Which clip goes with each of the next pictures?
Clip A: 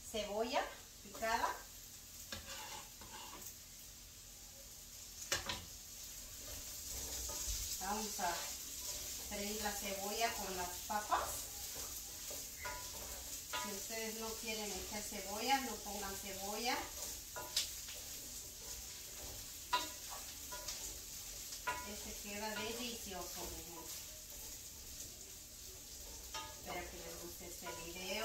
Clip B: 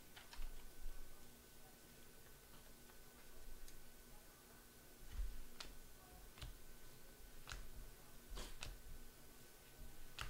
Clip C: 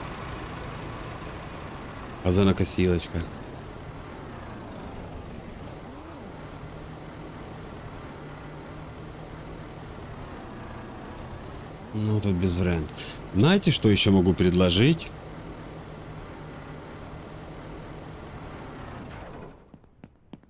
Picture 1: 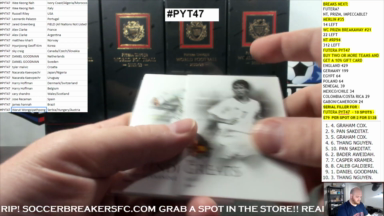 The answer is B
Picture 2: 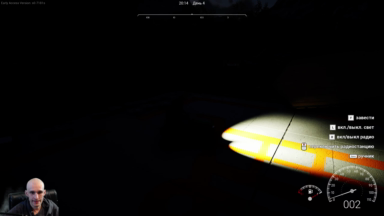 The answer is C